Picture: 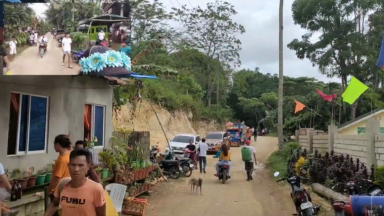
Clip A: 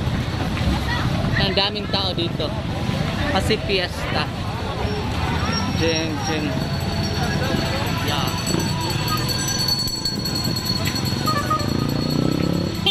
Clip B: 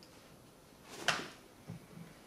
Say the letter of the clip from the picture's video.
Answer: A